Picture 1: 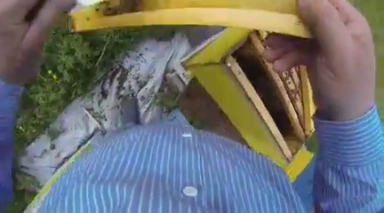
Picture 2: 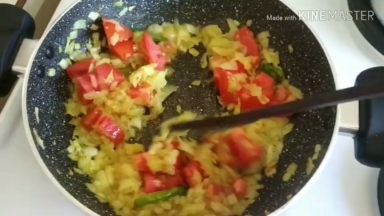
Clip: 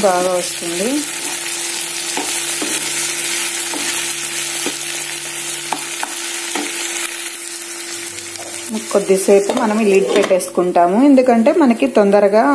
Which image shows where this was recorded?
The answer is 2